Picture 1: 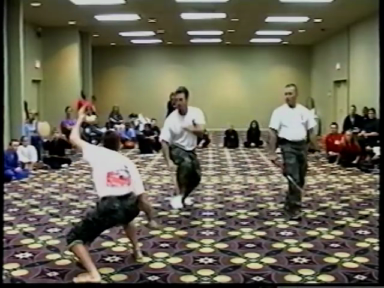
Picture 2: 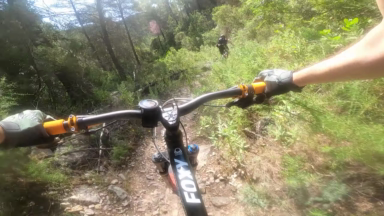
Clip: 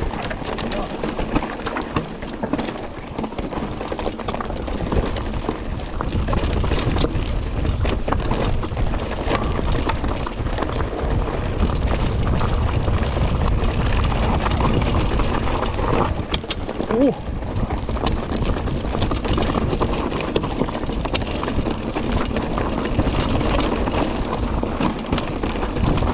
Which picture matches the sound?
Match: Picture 2